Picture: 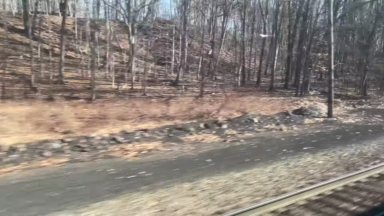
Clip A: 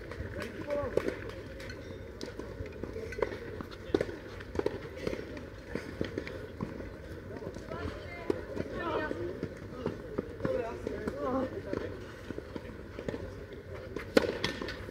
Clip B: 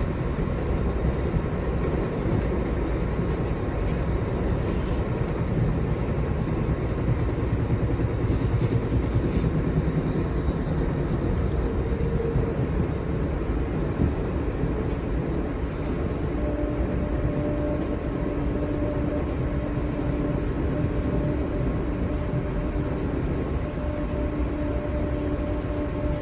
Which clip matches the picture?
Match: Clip B